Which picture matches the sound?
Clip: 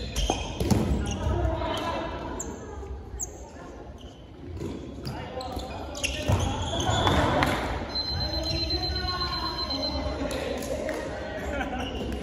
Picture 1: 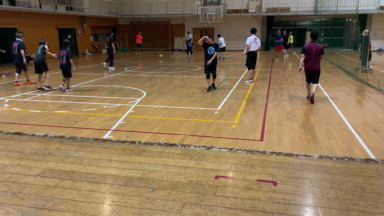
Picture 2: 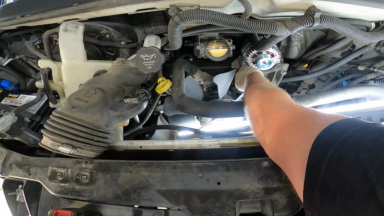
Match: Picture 1